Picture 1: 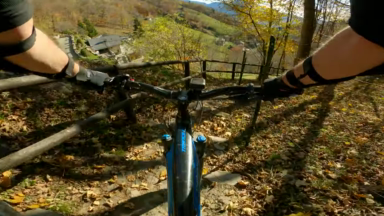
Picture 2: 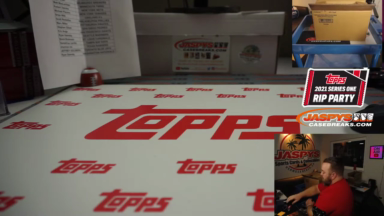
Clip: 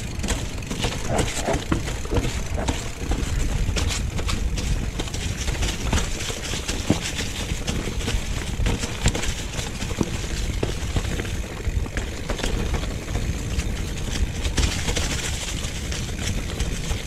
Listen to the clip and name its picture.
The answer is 1